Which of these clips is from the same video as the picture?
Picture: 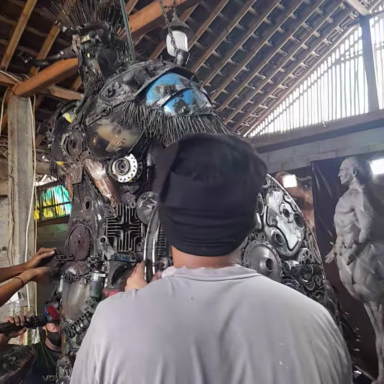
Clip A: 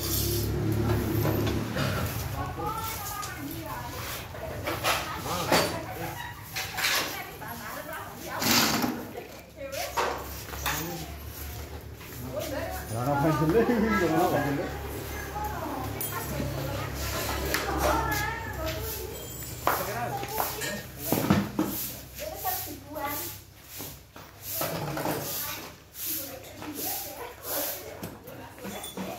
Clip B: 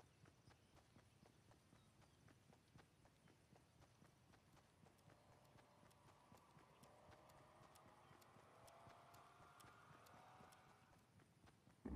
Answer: A